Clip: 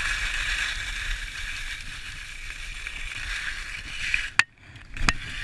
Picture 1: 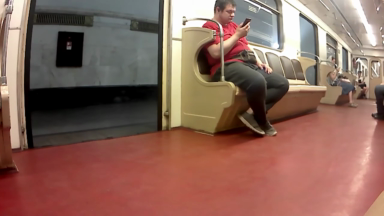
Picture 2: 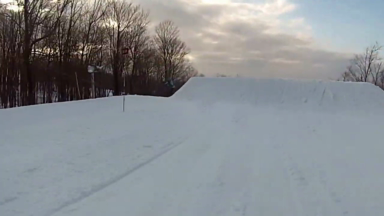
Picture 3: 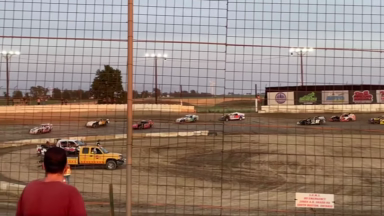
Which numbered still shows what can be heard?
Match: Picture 2